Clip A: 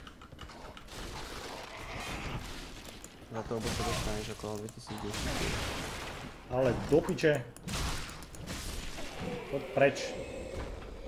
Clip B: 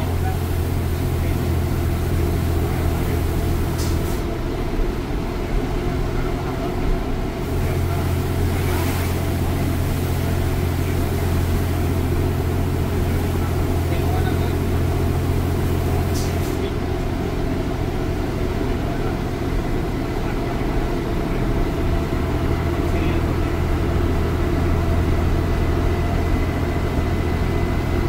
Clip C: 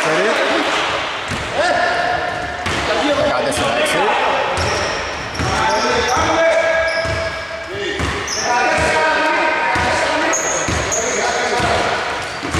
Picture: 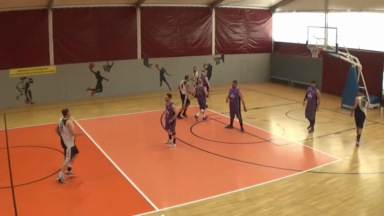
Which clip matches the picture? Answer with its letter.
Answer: C